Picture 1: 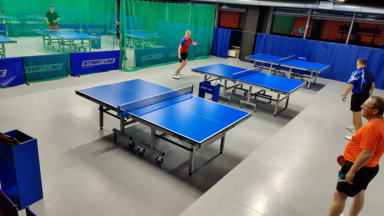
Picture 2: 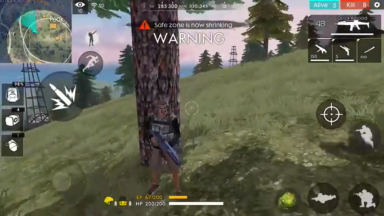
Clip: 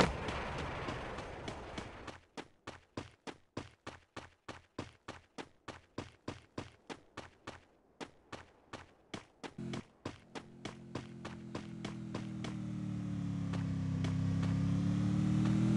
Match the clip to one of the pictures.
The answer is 2